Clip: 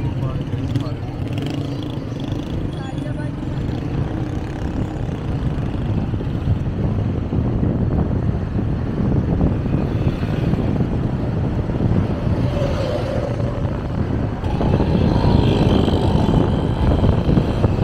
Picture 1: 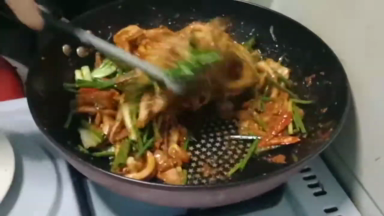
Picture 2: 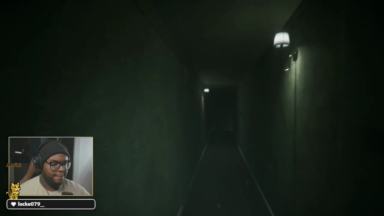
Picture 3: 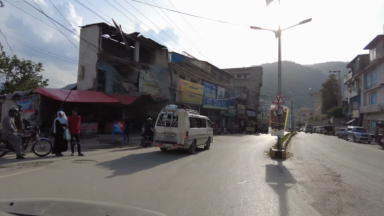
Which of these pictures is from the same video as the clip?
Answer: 3